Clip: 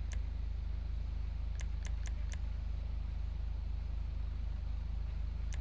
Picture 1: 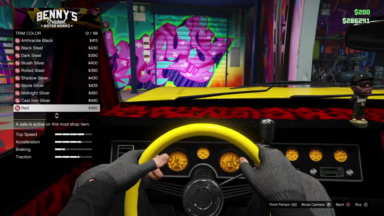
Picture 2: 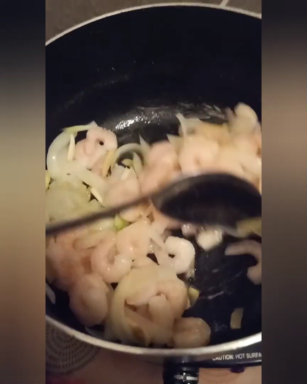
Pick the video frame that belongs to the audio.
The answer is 1